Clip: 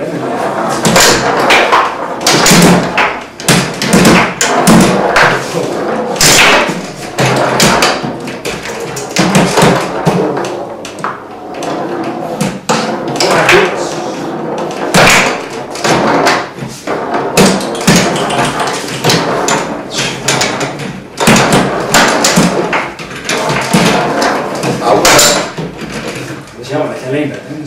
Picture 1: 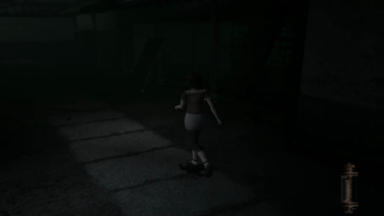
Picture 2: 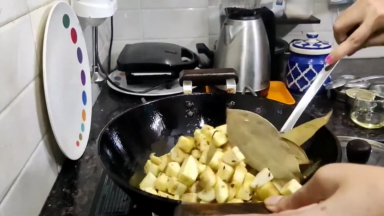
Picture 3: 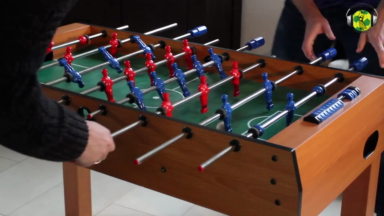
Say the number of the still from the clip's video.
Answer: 3